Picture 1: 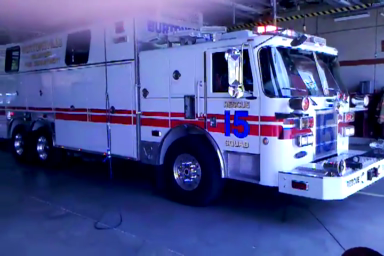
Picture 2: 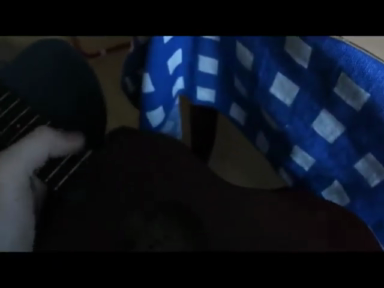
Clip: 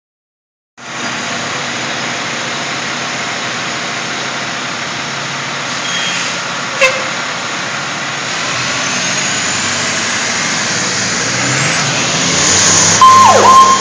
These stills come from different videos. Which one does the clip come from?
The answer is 1